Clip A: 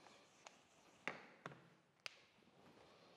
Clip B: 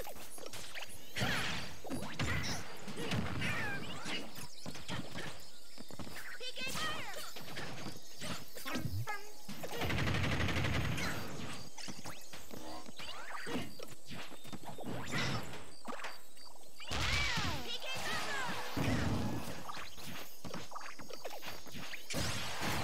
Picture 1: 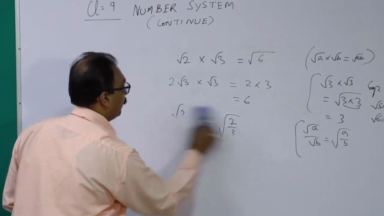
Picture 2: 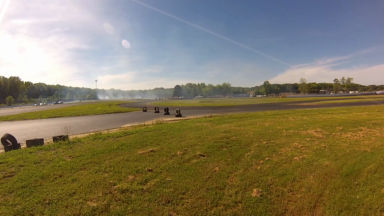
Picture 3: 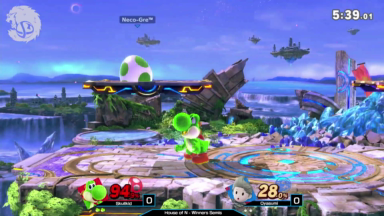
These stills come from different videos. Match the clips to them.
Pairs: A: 1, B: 3